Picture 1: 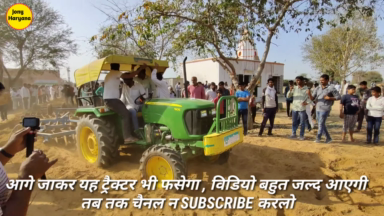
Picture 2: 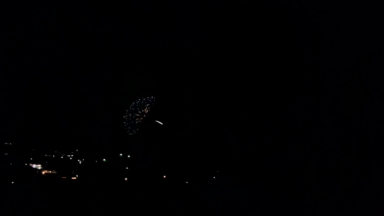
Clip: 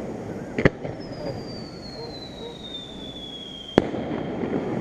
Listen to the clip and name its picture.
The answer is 2